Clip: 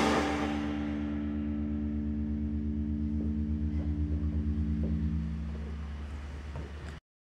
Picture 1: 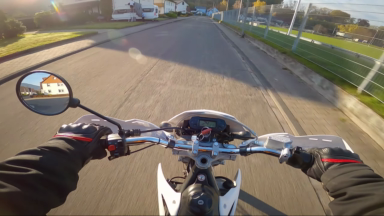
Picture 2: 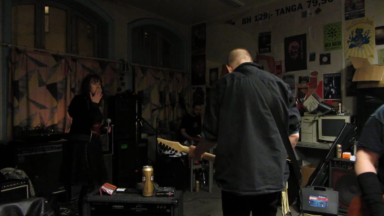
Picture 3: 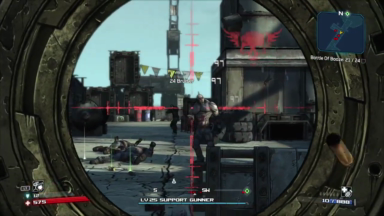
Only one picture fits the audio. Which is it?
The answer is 2